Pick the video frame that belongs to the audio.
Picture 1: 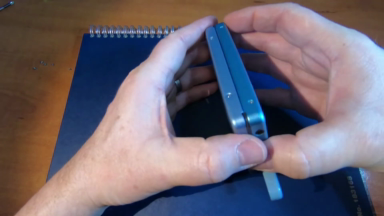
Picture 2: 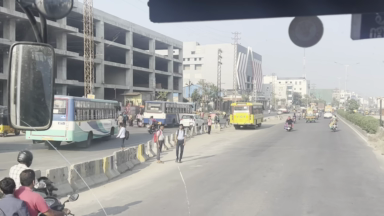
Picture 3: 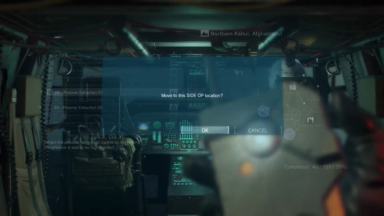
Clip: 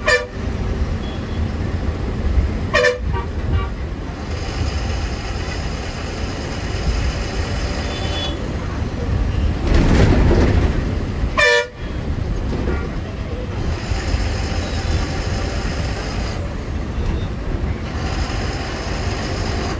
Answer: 2